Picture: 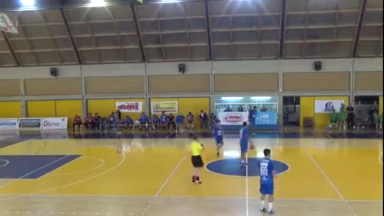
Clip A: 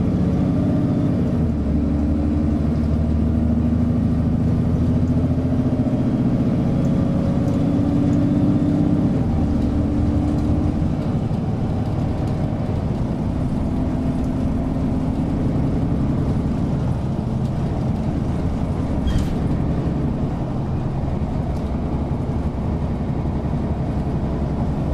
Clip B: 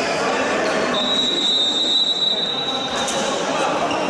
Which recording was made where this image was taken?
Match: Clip B